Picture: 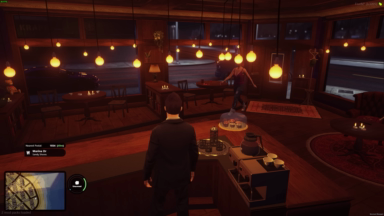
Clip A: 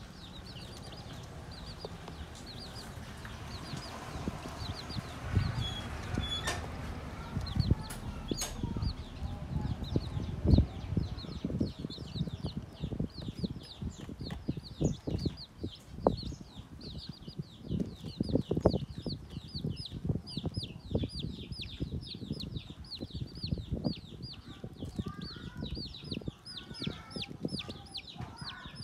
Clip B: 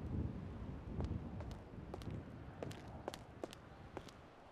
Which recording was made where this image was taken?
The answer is B